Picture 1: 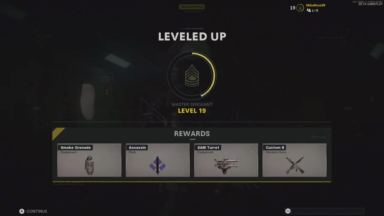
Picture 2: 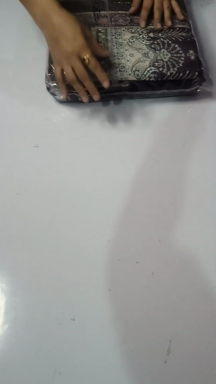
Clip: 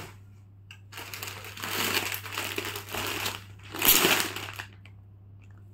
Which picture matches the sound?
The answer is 2